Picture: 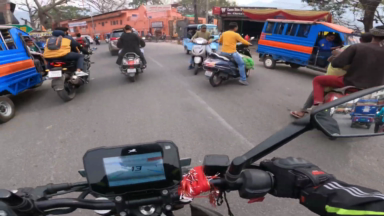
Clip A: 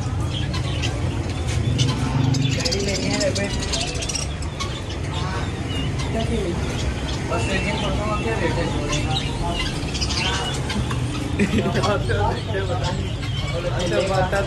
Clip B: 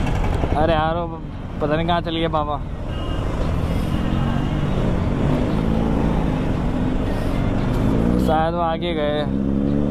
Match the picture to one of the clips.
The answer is B